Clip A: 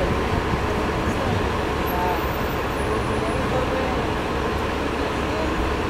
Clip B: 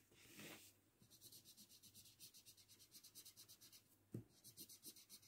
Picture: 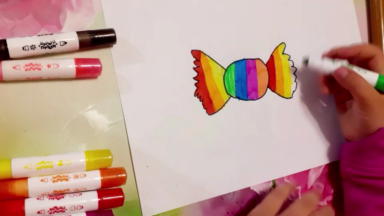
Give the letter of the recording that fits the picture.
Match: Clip B